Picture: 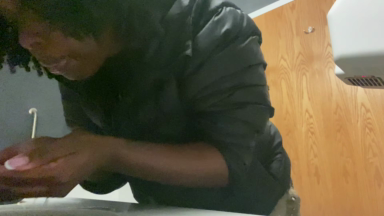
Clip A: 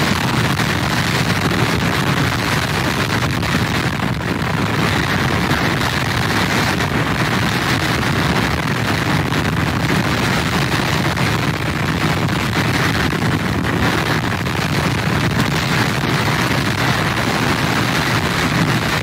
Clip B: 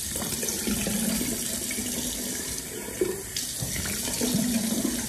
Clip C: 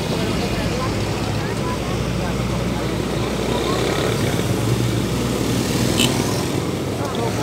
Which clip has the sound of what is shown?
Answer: B